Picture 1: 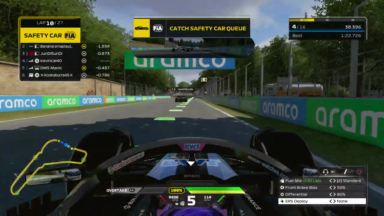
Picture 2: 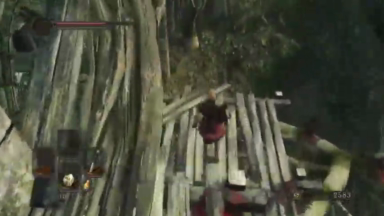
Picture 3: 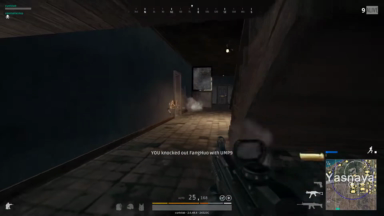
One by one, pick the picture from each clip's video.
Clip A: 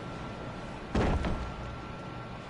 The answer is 2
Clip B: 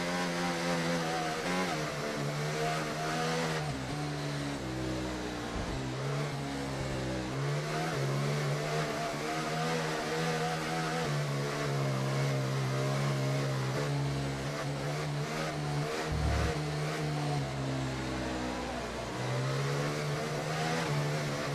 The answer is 1